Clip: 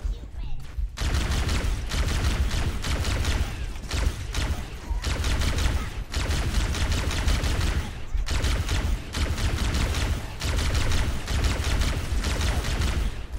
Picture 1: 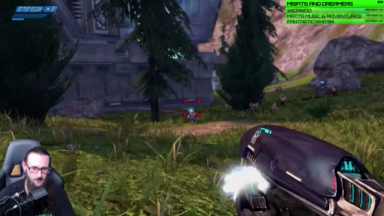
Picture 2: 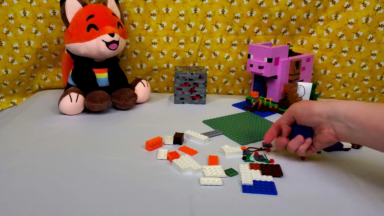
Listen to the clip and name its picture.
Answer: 1